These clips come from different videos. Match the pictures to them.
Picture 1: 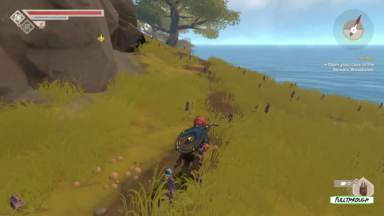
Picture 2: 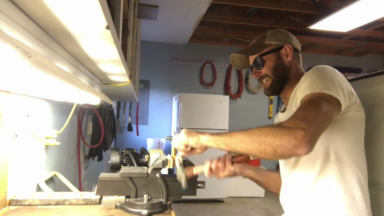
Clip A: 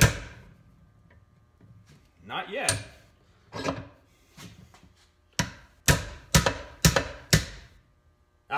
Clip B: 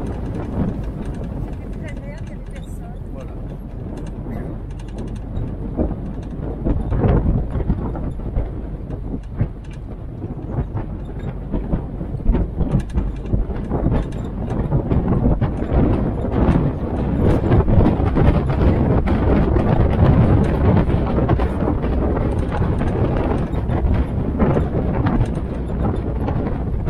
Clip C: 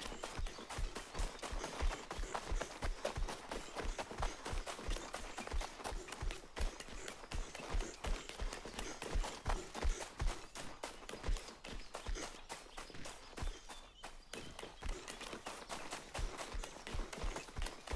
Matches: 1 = C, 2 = A